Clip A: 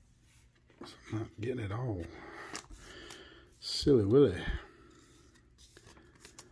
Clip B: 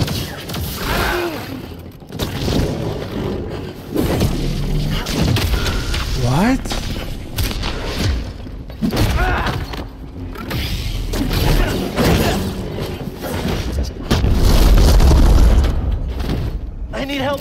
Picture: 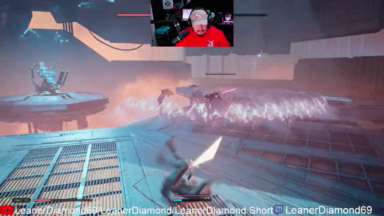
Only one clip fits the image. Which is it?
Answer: B